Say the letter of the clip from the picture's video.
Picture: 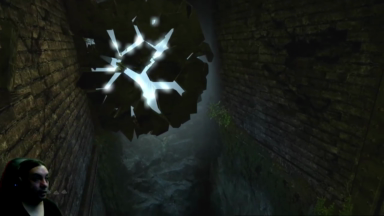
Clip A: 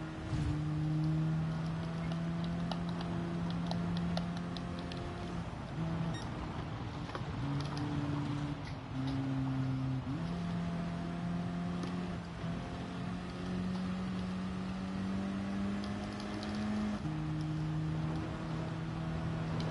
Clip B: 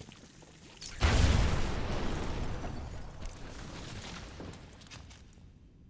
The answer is B